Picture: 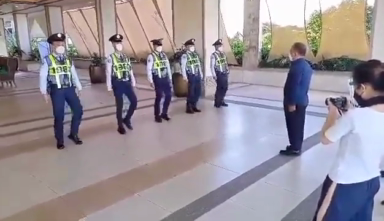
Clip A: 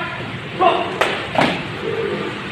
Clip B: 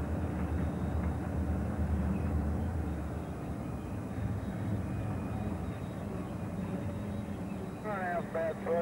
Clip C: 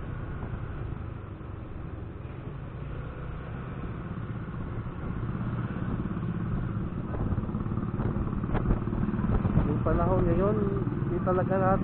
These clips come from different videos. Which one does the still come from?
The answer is A